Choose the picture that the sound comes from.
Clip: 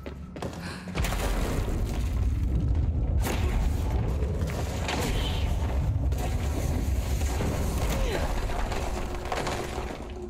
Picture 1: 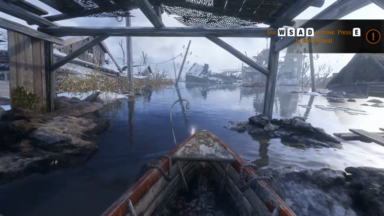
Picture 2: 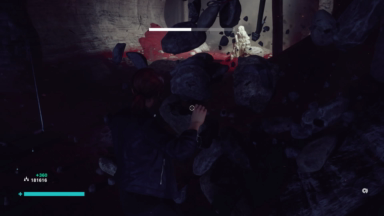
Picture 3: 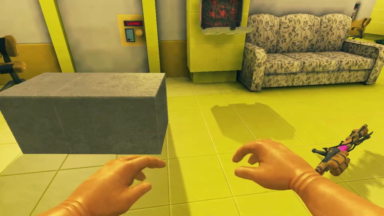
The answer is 2